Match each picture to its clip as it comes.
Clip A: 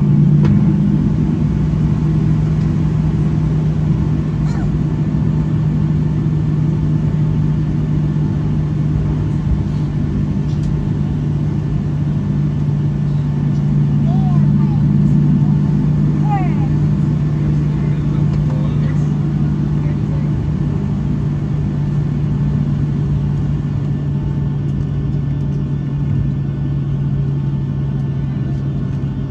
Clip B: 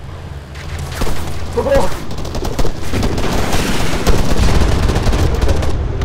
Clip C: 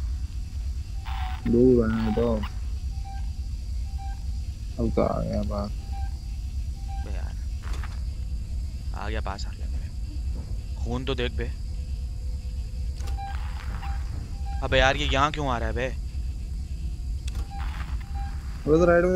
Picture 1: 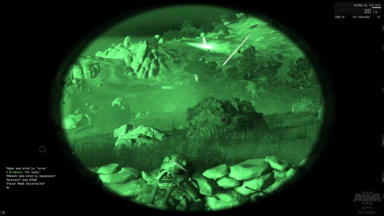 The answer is B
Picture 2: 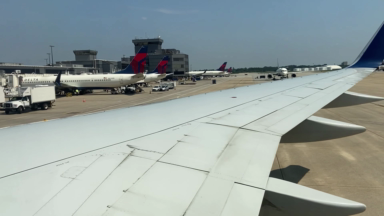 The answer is A